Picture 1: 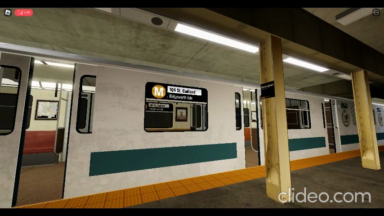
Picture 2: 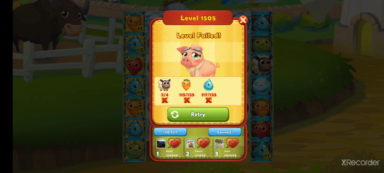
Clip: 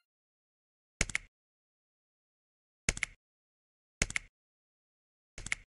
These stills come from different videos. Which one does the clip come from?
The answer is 2